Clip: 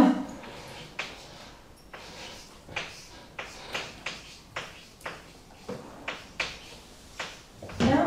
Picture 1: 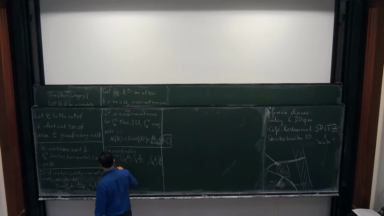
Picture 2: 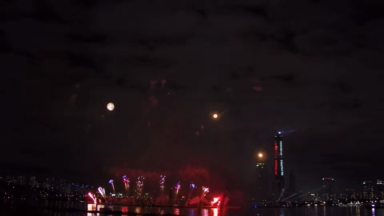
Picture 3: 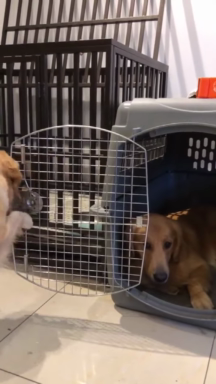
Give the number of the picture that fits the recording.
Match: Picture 1